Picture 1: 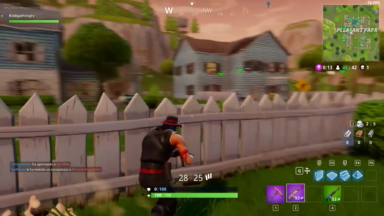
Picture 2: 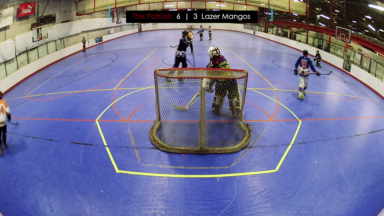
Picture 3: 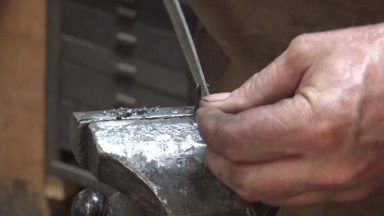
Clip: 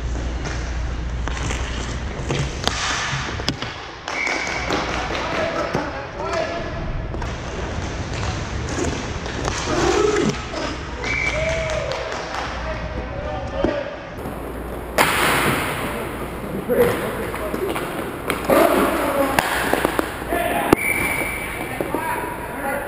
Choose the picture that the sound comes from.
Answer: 2